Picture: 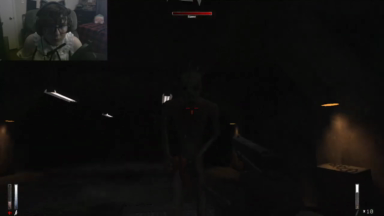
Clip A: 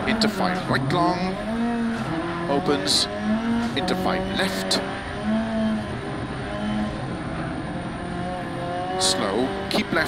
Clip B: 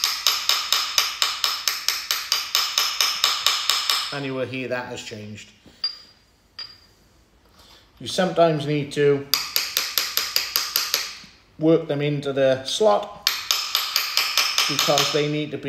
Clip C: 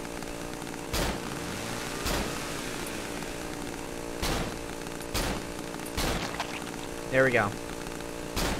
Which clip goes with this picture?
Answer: C